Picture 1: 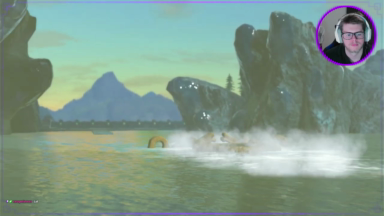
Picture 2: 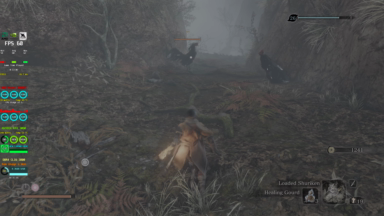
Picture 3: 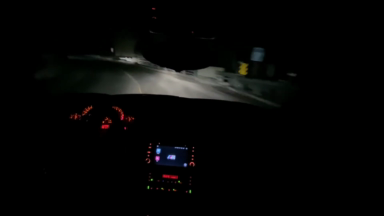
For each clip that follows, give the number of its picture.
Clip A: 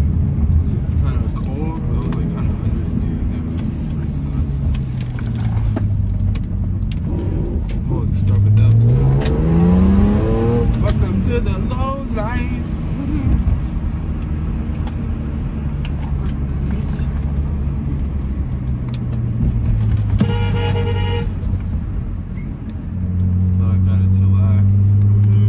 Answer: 3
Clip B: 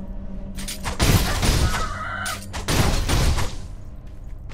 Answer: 2